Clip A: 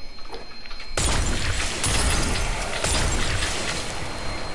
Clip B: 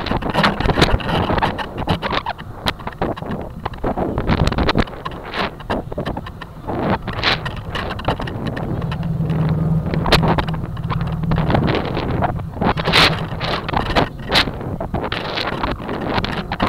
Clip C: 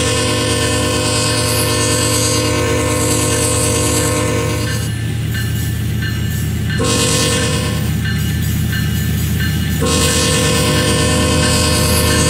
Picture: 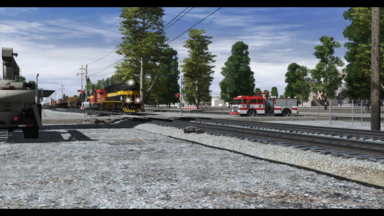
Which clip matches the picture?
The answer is C